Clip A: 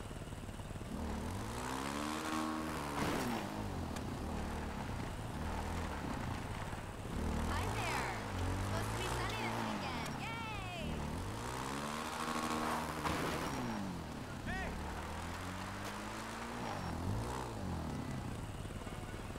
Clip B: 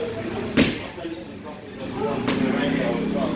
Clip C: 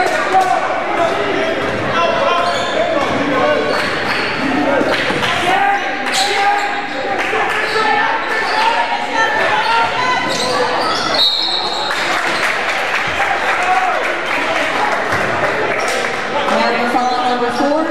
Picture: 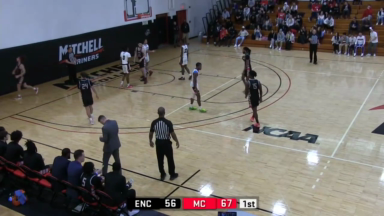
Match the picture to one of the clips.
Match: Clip C